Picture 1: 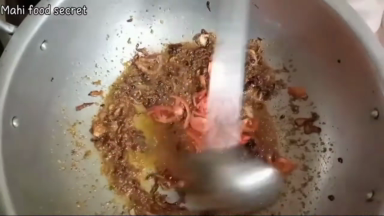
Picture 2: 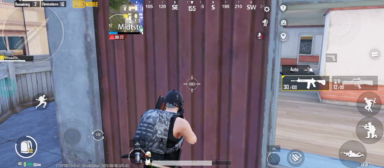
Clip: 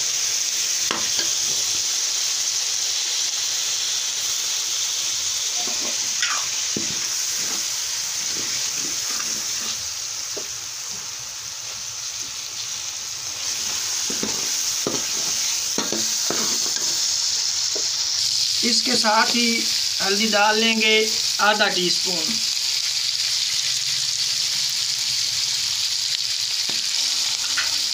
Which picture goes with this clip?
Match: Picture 1